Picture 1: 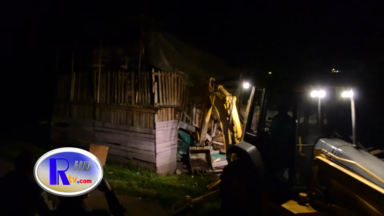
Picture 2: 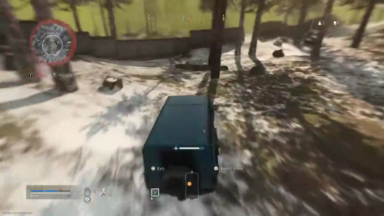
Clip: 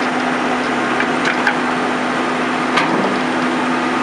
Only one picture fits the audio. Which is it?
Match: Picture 1